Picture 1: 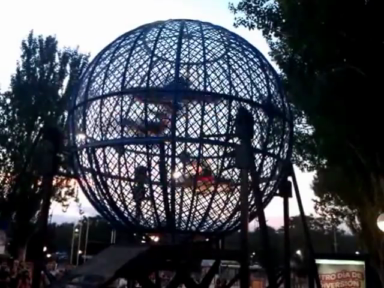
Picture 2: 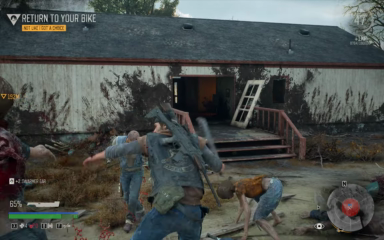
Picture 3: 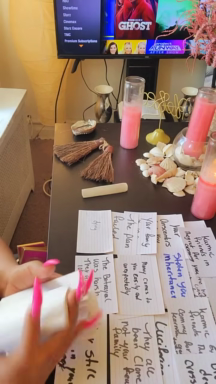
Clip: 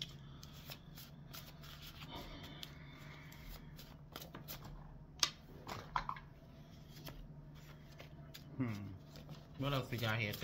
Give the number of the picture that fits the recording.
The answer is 3